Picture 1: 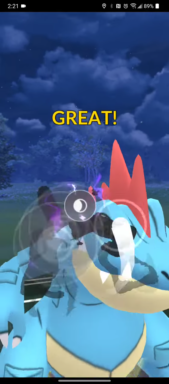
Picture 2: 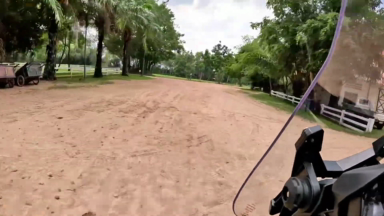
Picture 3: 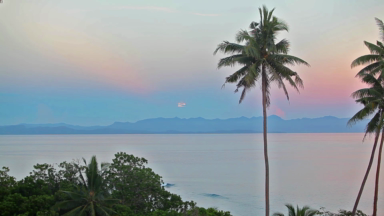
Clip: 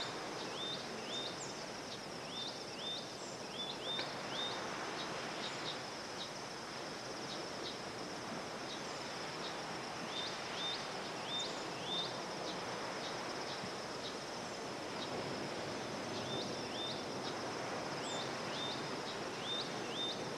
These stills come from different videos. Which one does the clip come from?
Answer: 3